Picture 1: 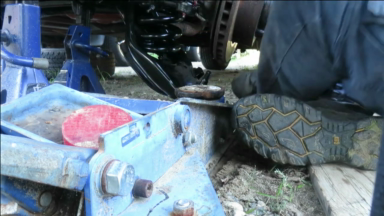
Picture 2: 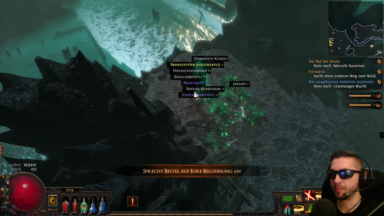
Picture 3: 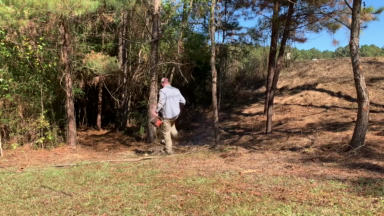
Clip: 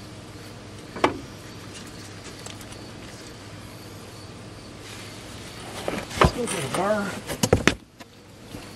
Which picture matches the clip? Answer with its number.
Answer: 1